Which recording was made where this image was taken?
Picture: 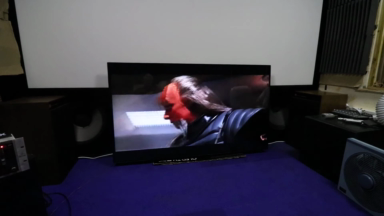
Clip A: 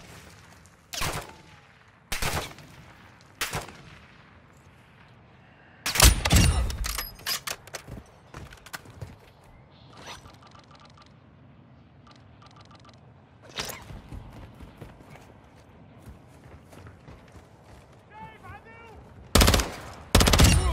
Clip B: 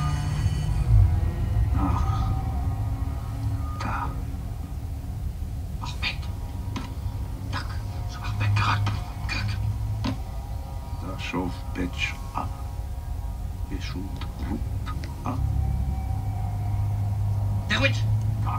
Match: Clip B